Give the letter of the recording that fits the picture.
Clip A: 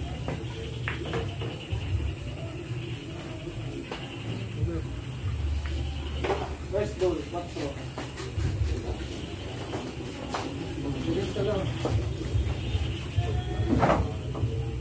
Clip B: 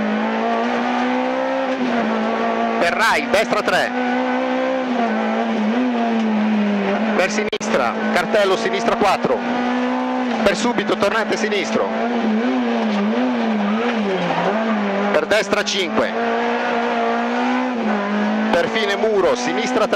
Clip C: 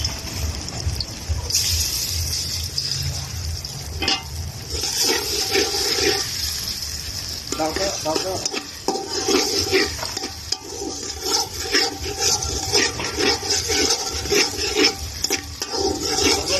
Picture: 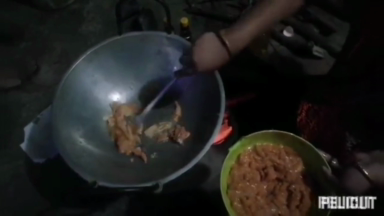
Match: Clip C